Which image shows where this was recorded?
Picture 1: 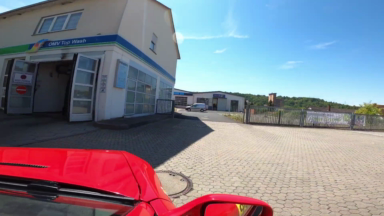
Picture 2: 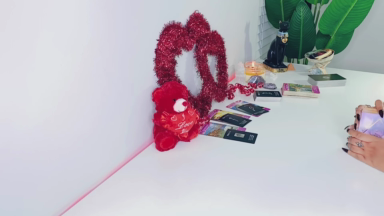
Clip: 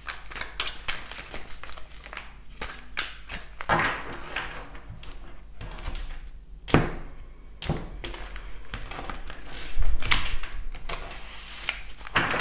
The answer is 2